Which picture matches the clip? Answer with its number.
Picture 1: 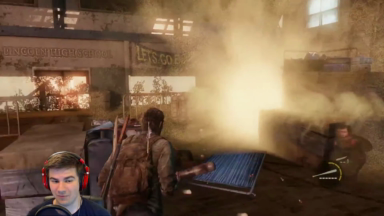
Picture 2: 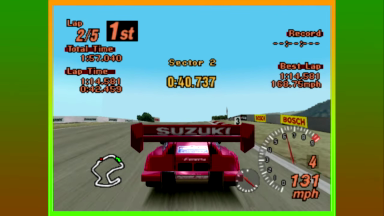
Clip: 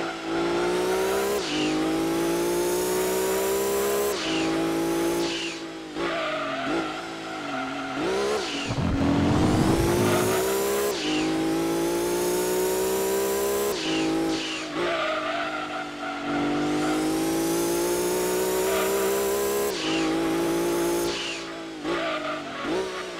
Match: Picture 2